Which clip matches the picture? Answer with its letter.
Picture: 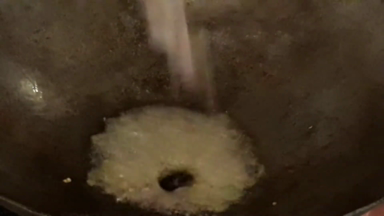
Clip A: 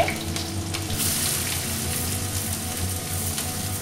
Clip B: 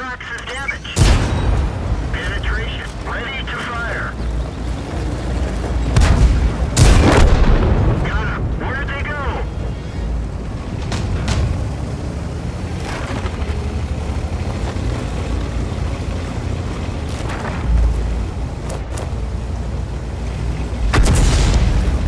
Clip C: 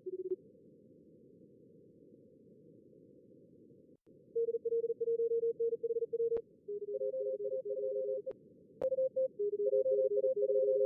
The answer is A